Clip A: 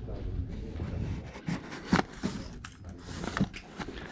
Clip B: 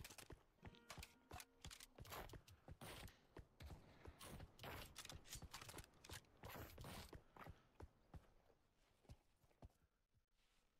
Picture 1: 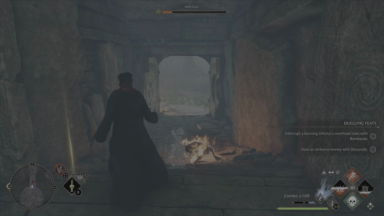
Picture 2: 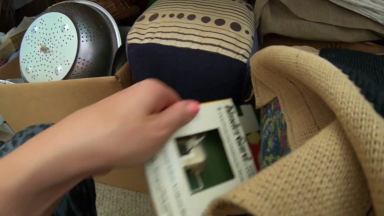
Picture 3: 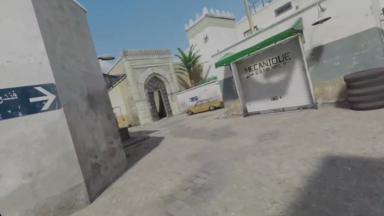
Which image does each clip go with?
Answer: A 2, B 3